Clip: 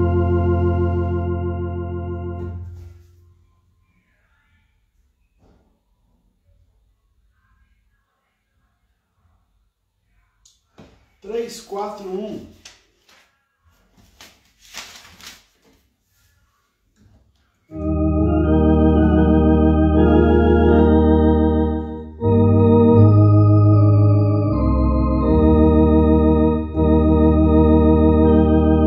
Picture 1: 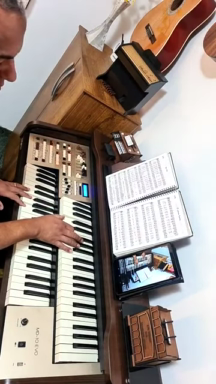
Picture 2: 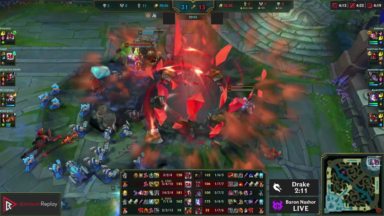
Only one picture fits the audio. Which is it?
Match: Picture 1